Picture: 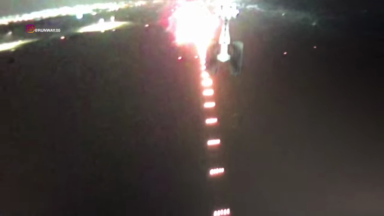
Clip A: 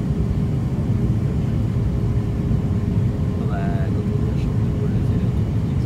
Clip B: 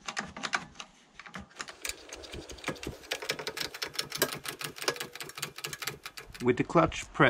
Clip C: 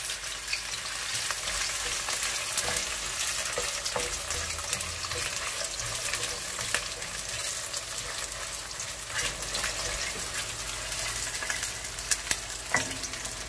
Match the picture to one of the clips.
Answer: A